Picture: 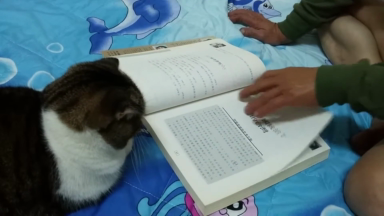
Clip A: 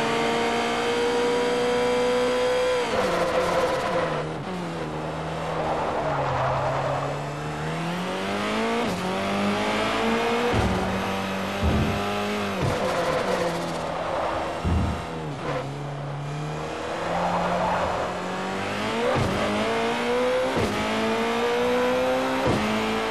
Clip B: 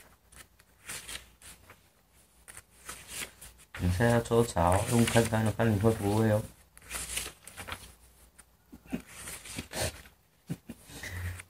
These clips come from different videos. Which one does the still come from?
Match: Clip B